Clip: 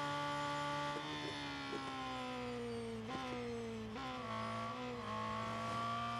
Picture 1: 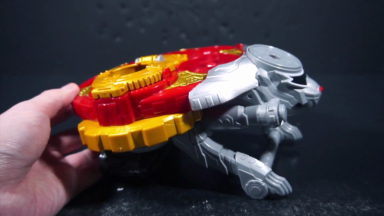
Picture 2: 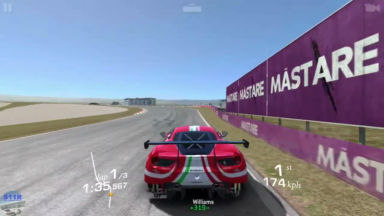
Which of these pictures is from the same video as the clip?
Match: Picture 2